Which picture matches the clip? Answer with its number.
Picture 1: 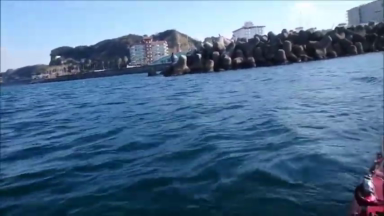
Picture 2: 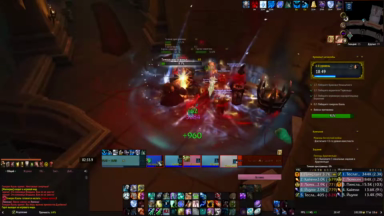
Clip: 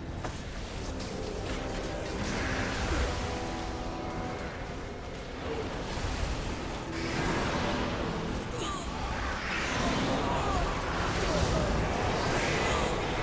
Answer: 2